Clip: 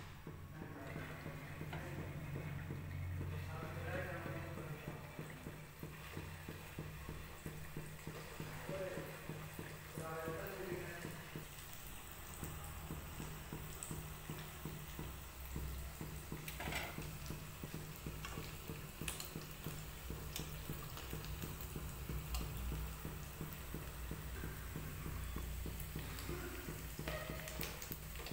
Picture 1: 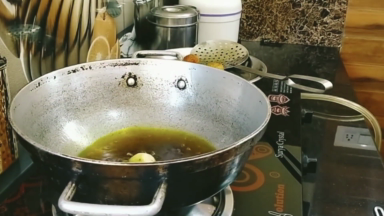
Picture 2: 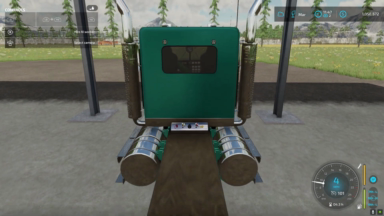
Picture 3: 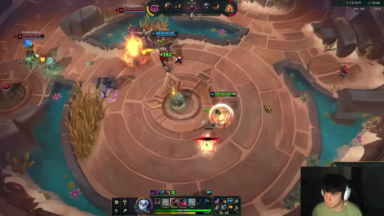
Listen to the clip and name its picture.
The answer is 1